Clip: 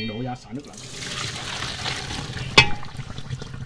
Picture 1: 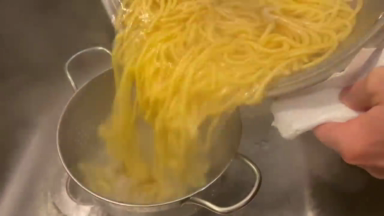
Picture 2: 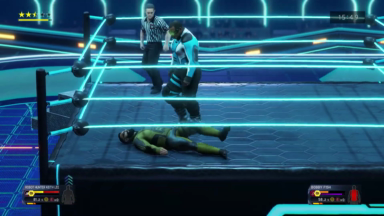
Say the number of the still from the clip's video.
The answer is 1